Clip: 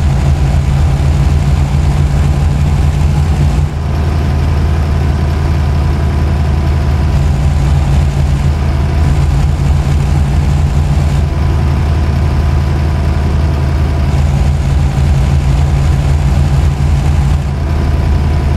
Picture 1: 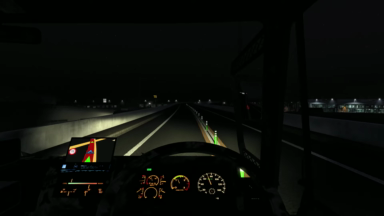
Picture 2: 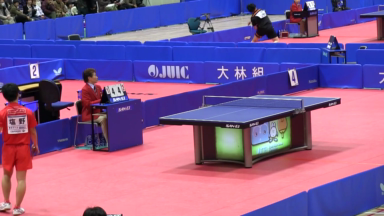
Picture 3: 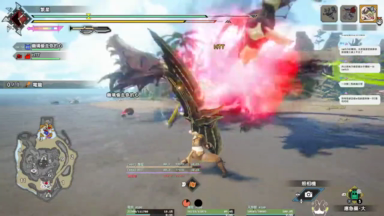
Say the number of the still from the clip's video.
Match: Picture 1